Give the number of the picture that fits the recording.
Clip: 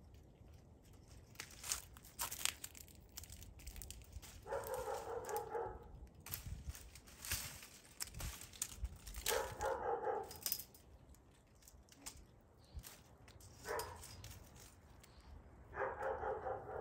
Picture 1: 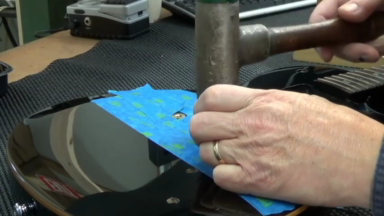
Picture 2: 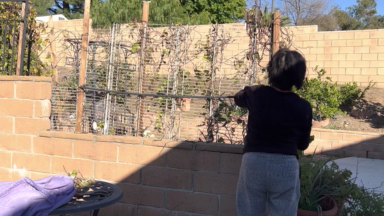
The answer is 2